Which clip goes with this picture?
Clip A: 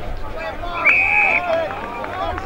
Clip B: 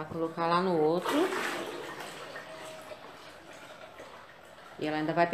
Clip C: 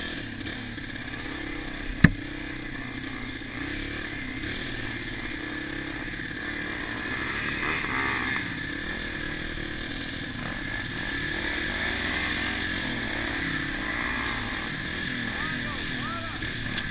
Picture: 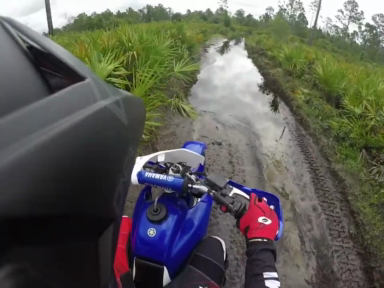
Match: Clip C